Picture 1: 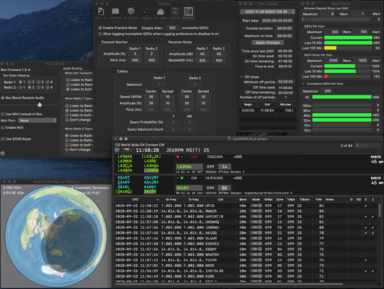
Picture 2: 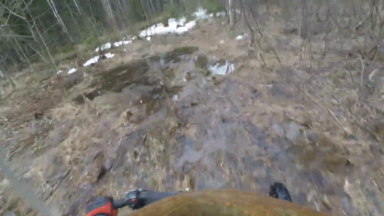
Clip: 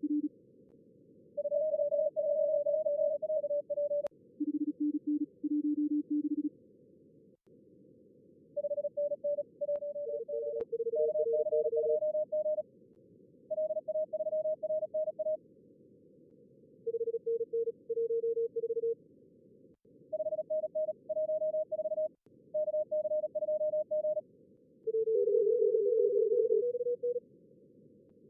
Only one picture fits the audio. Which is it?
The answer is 1